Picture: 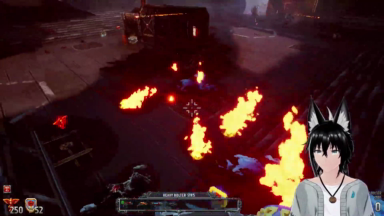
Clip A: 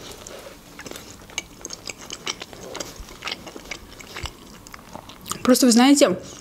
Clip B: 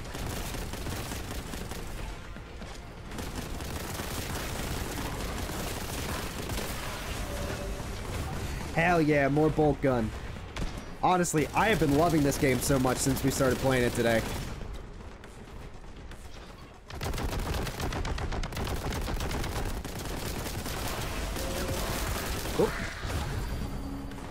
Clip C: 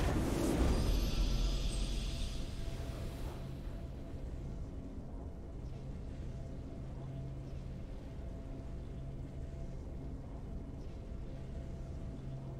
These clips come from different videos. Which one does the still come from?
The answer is B